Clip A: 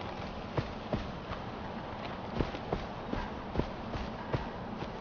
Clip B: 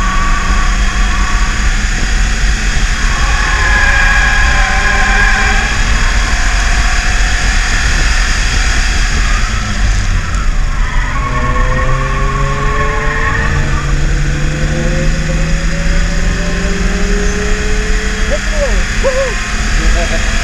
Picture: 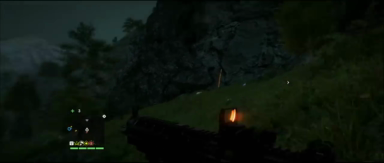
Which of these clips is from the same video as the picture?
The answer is A